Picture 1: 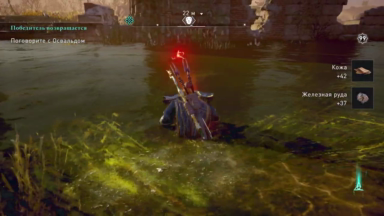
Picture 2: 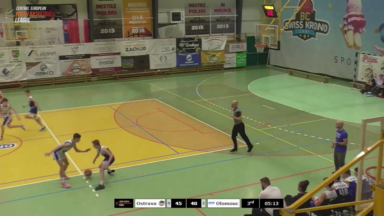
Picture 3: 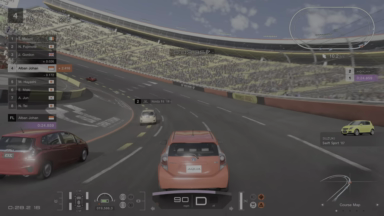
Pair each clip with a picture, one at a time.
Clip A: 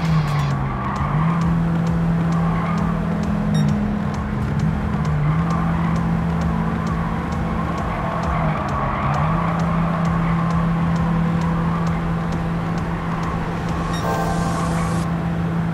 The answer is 3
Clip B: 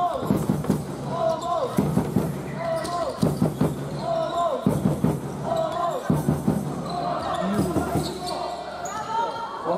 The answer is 2